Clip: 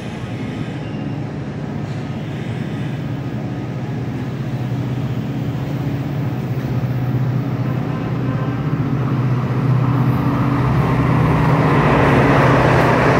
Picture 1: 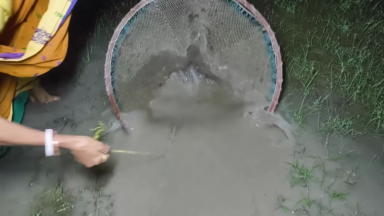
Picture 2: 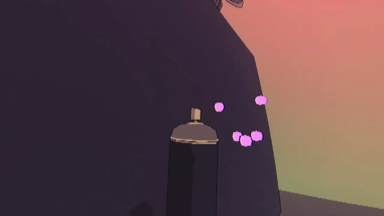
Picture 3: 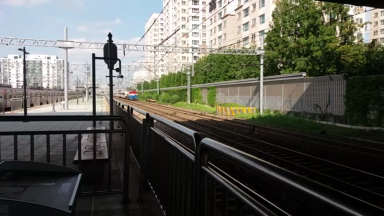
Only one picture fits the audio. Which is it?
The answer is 3